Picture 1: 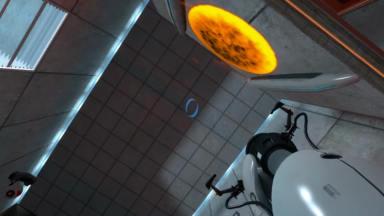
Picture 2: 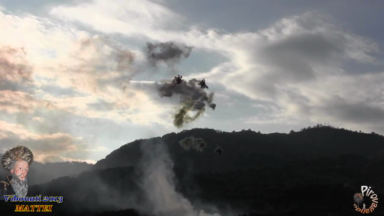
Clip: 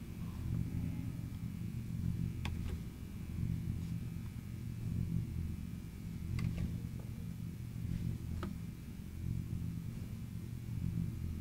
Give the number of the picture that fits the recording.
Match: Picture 1